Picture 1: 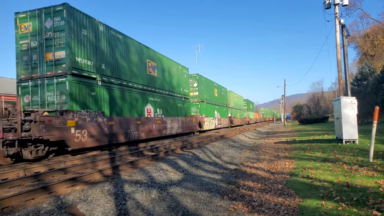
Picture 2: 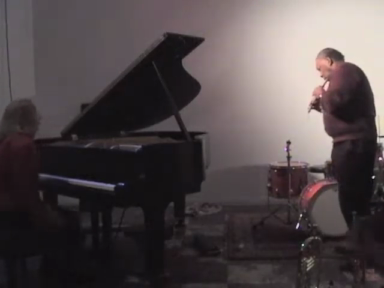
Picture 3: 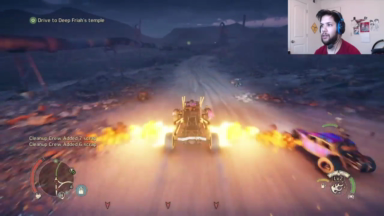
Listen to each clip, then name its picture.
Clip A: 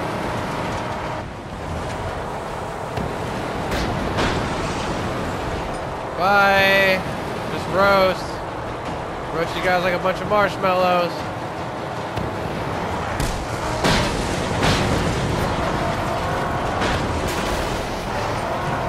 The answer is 3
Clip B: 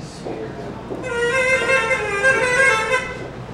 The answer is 2